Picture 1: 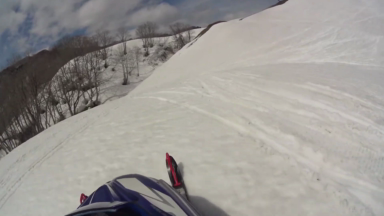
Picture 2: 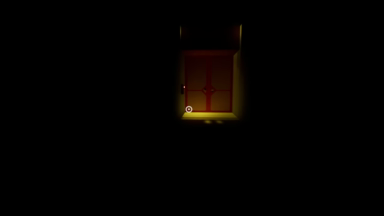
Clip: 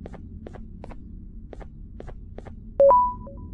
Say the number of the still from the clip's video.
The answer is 2